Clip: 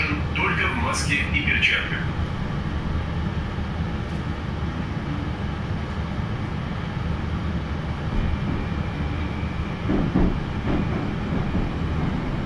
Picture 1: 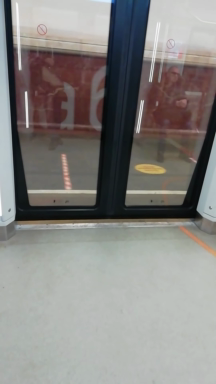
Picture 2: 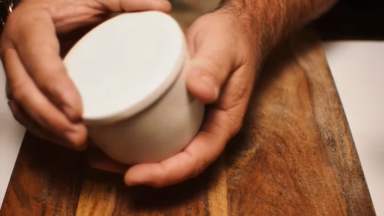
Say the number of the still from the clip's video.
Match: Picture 1